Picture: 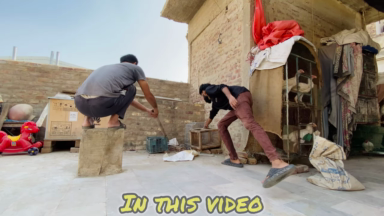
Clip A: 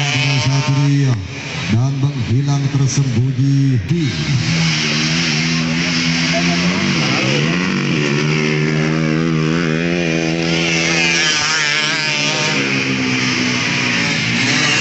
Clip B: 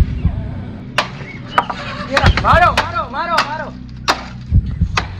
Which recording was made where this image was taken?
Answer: B